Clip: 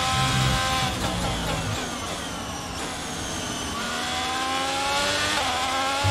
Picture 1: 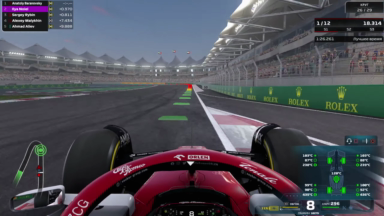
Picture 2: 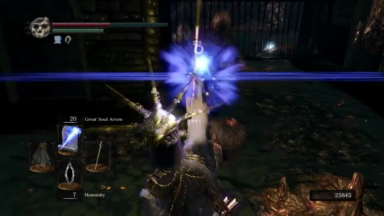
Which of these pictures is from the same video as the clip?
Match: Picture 1